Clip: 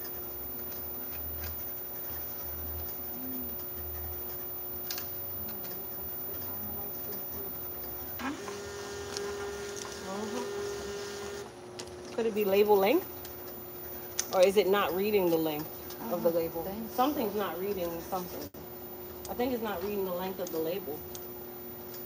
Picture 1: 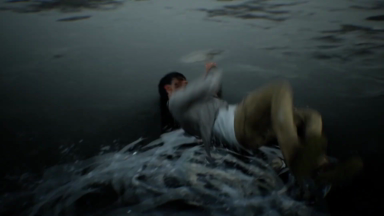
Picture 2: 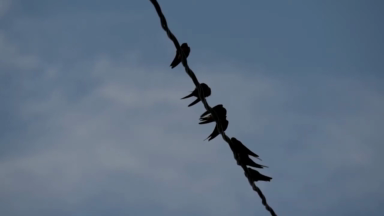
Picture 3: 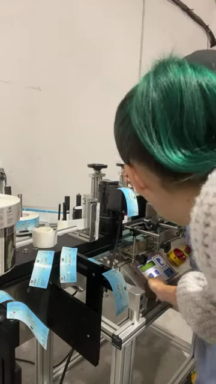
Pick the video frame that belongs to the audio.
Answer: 3